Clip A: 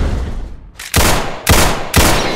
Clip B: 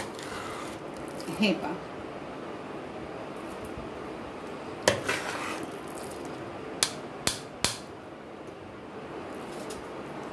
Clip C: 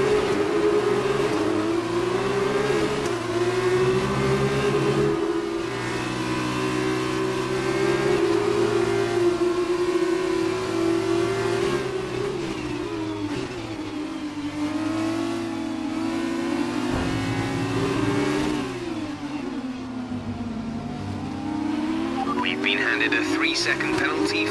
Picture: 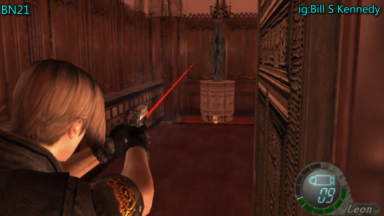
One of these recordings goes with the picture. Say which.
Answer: A